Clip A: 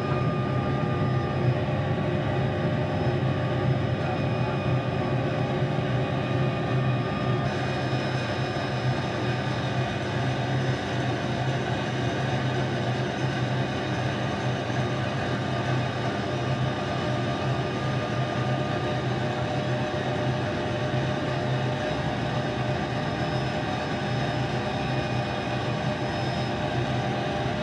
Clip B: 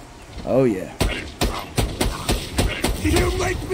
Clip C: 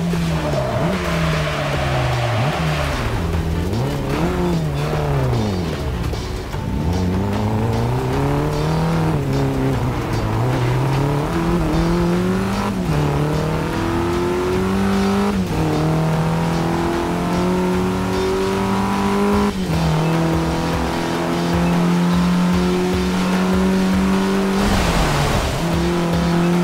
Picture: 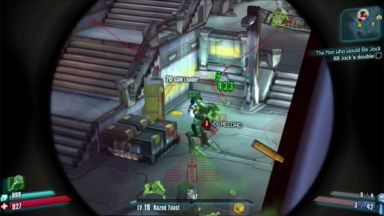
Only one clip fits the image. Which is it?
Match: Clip B